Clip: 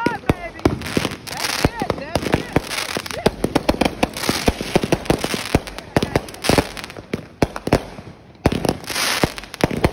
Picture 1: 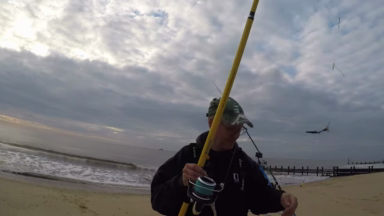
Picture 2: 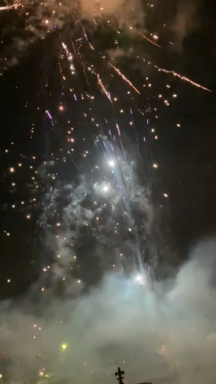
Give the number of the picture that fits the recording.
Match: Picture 2